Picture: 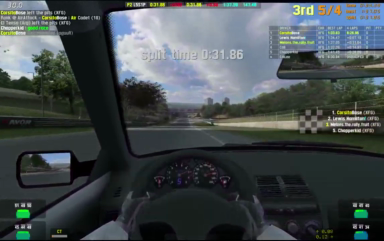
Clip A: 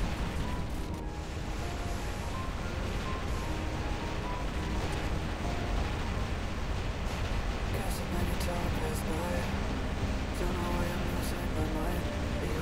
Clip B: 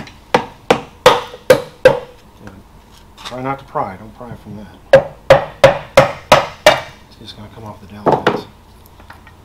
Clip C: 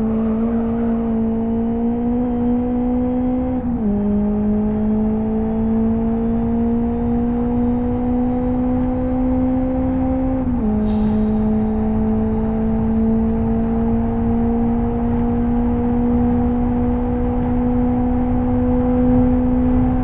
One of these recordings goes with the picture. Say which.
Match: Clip C